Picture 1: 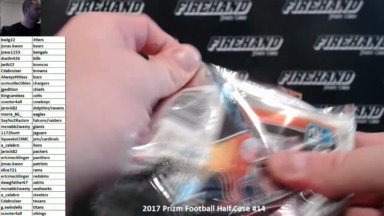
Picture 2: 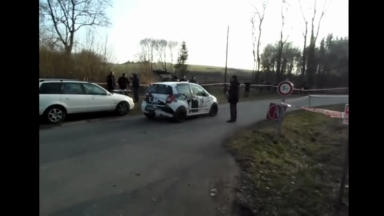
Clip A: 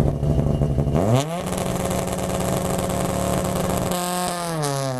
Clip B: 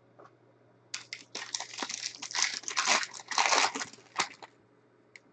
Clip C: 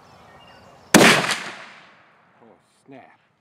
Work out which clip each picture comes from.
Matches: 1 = B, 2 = A